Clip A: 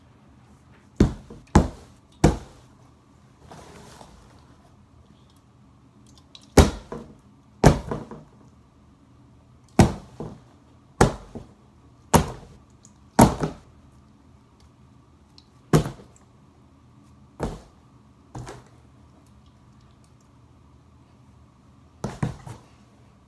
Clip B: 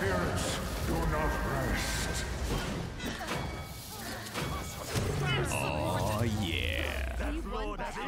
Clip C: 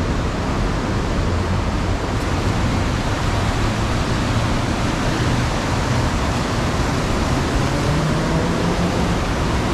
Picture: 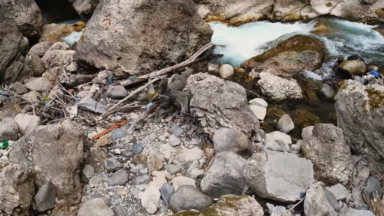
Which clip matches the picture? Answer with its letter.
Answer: C